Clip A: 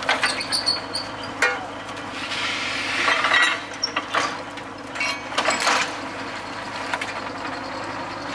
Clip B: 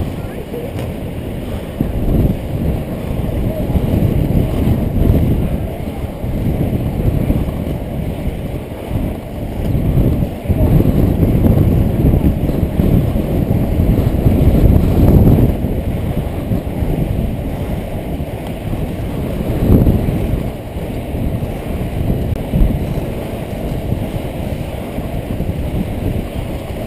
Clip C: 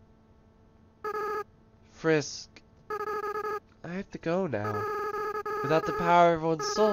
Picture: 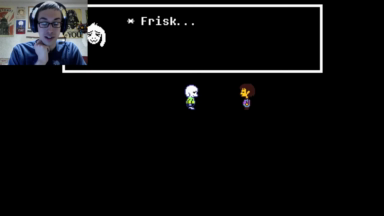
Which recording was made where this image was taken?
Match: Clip C